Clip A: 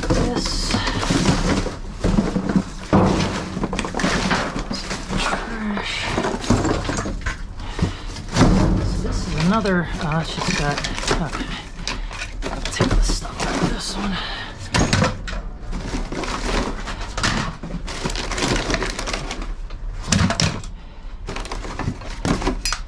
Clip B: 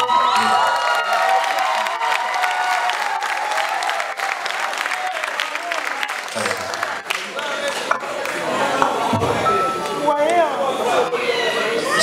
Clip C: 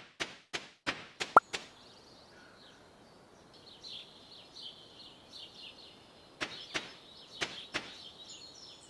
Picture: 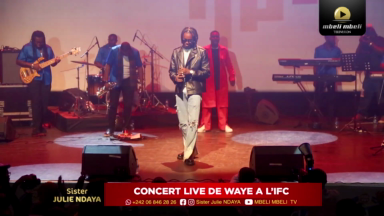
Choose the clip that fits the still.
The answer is B